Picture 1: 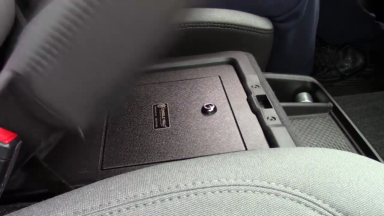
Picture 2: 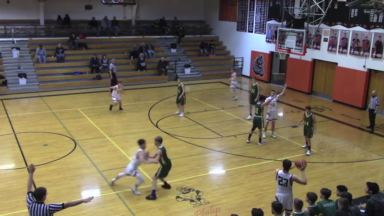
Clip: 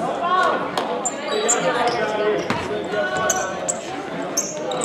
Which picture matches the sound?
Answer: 2